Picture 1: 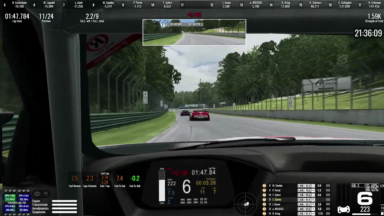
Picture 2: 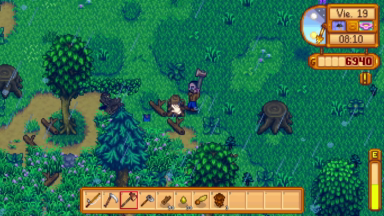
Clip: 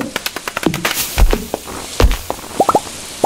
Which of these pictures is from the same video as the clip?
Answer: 2